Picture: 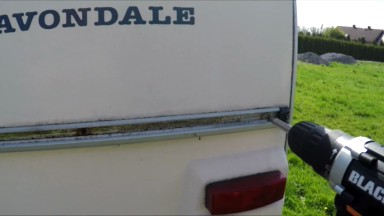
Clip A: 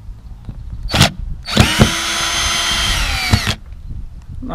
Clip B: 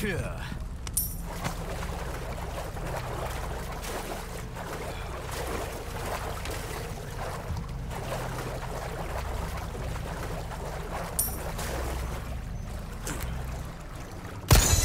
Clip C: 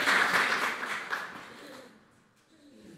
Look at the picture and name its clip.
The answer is A